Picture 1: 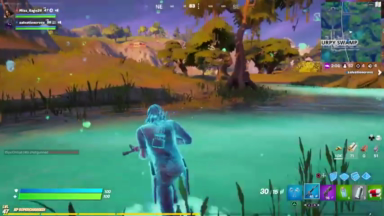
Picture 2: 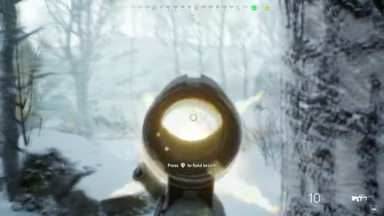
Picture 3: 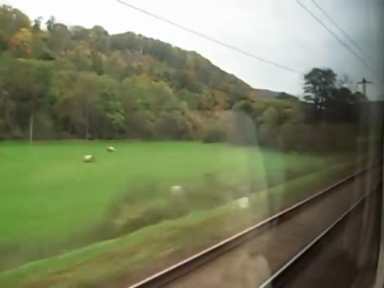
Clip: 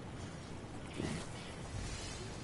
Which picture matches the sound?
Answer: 1